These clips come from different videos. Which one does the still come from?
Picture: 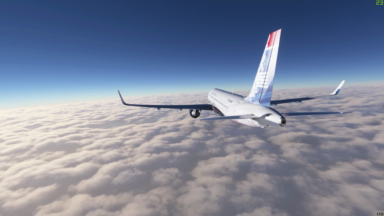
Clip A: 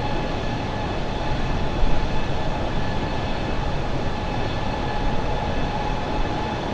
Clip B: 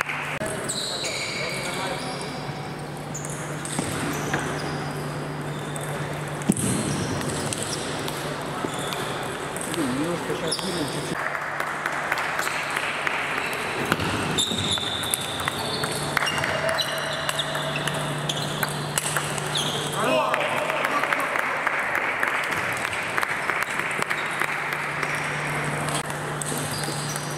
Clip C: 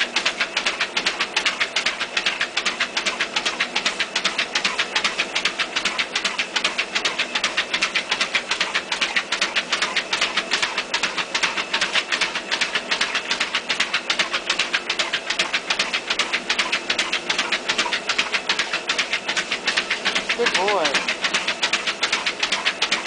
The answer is A